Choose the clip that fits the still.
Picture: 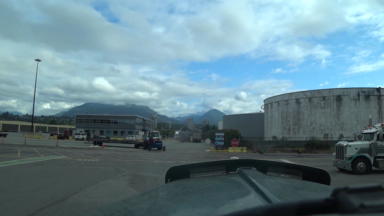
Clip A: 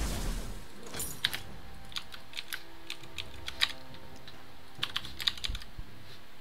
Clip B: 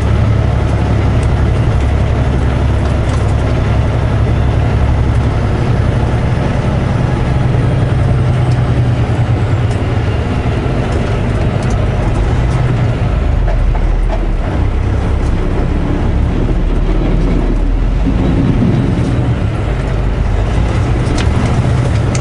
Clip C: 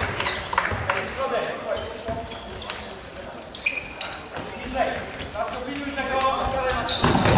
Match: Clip B